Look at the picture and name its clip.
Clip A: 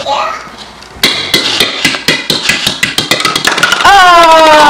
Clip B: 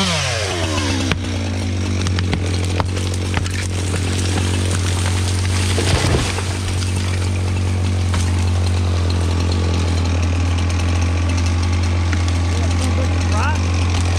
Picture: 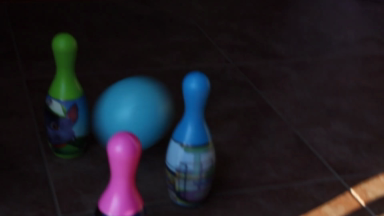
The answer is A